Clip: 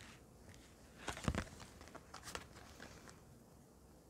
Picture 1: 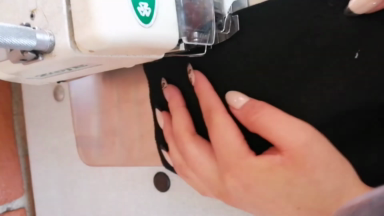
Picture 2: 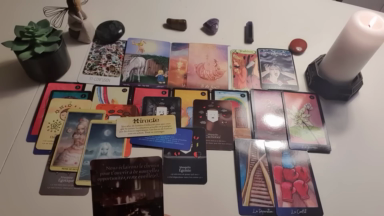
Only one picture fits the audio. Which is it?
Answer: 2